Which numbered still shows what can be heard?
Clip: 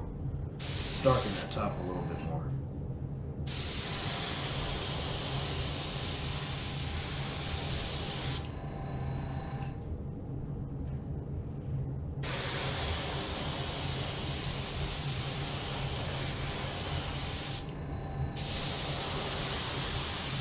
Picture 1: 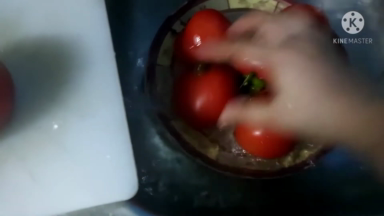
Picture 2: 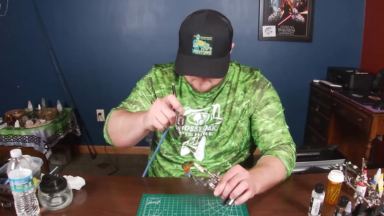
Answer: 2